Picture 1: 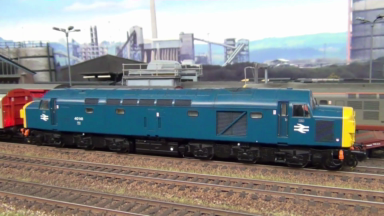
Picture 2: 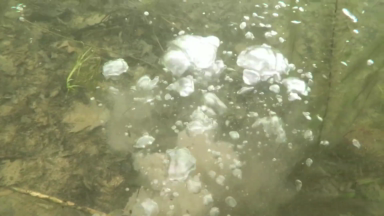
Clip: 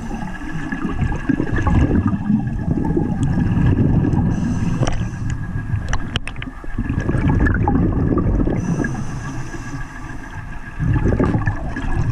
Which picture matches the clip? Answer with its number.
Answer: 2